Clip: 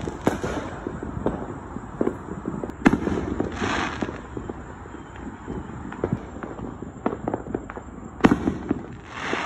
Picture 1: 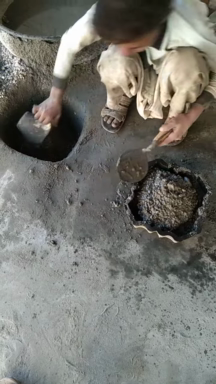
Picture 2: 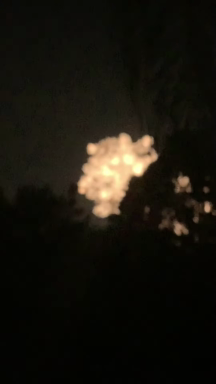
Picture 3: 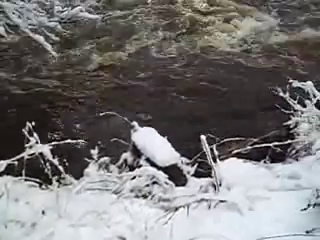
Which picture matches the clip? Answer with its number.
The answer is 2